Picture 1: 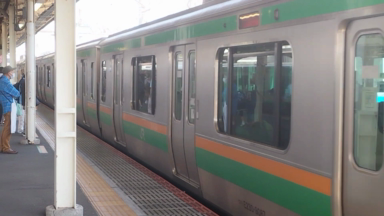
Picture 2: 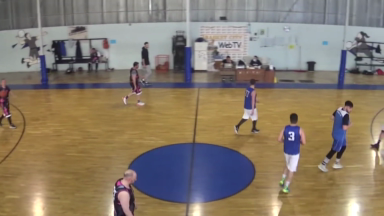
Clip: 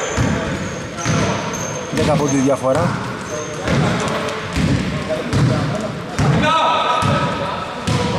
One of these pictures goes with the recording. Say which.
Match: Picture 2